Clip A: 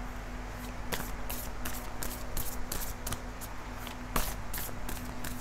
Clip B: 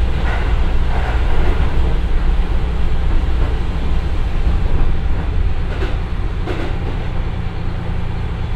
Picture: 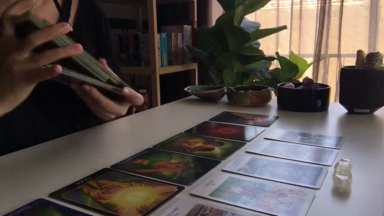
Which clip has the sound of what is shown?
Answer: A